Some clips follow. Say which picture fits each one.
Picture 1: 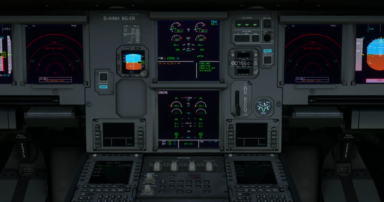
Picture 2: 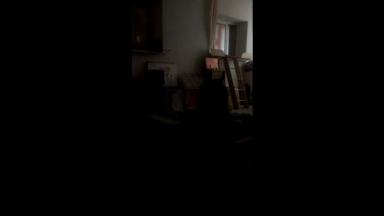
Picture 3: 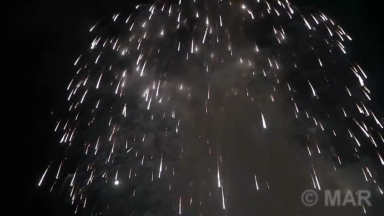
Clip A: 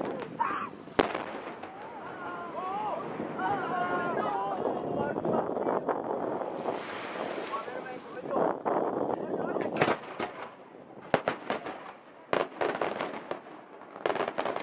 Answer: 3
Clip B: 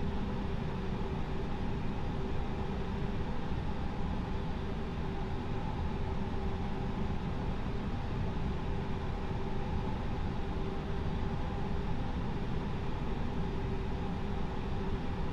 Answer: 1